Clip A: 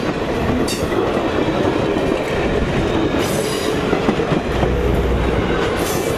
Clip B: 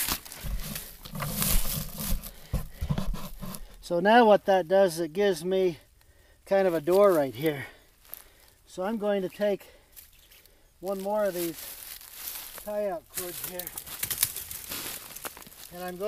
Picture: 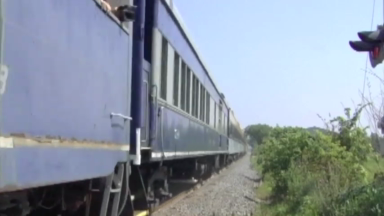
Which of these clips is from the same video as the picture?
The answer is A